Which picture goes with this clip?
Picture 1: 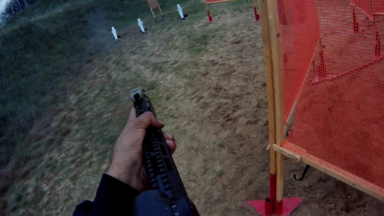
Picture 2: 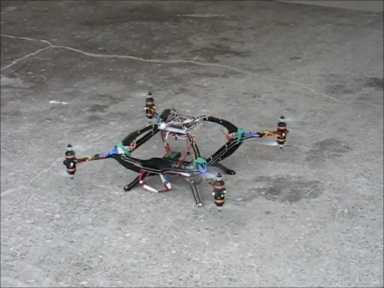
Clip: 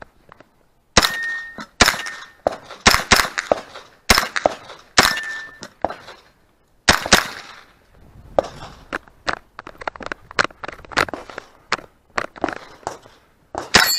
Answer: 1